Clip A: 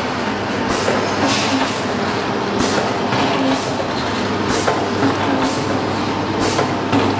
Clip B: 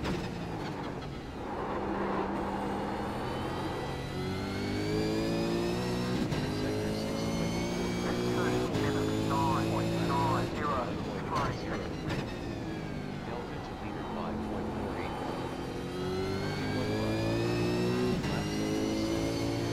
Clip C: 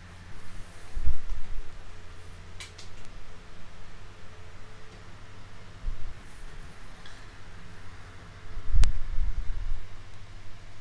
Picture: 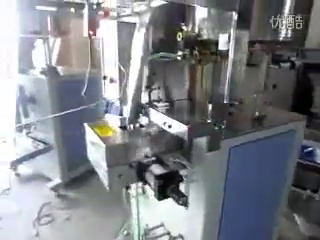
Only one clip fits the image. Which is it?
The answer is A